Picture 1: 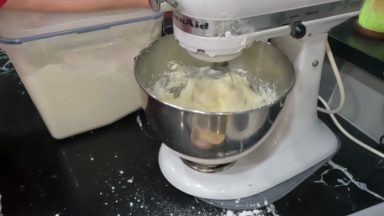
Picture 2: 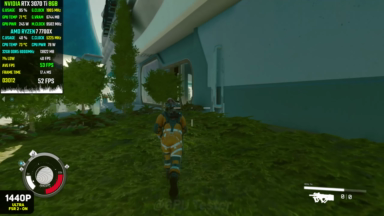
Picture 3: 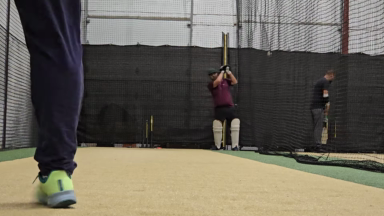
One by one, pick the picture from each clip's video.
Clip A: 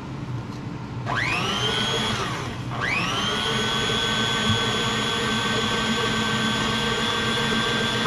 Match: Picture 1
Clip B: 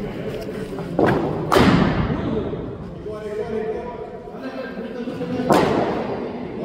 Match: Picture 3